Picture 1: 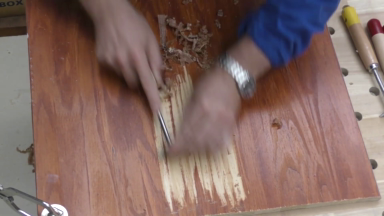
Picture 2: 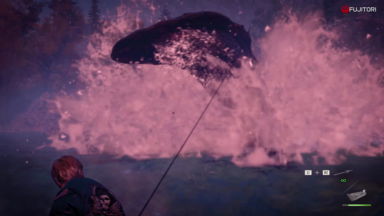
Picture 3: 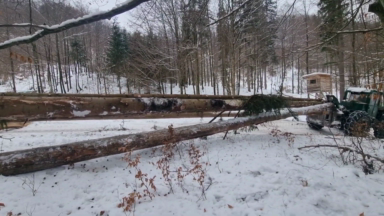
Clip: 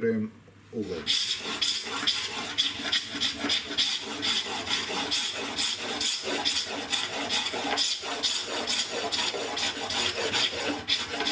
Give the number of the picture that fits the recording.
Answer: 1